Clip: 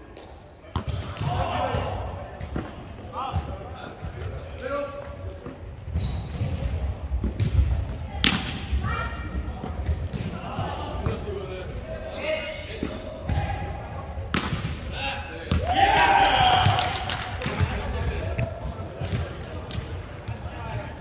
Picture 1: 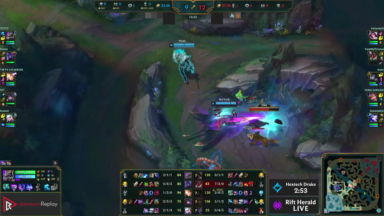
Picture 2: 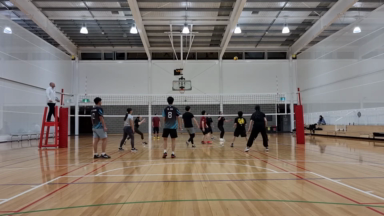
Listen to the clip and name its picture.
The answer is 2